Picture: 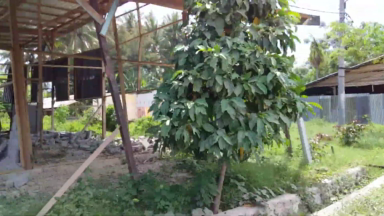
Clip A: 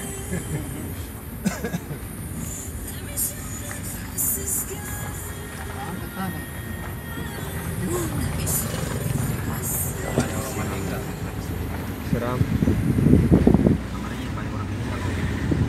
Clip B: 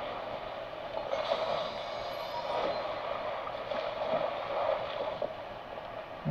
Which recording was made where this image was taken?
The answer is A